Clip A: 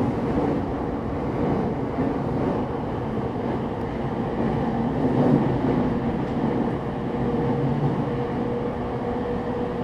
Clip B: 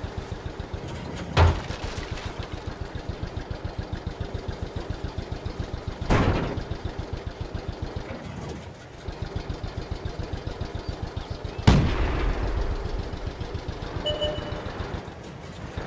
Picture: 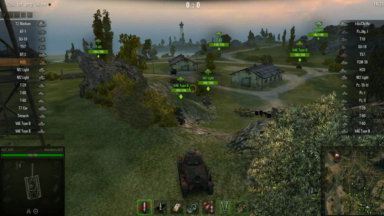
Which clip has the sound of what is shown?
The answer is B